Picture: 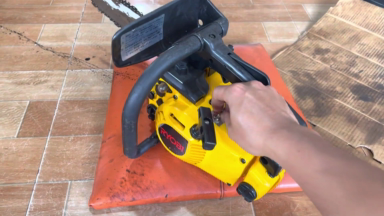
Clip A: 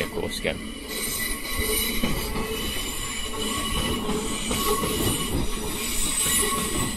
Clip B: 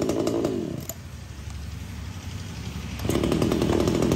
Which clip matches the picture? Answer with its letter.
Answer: B